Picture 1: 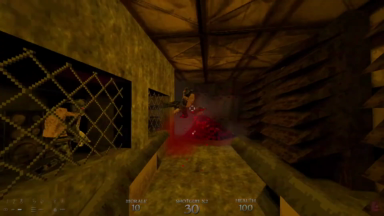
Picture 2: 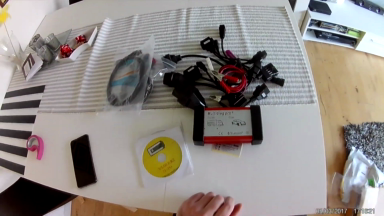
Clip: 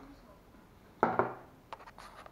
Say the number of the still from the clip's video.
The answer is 2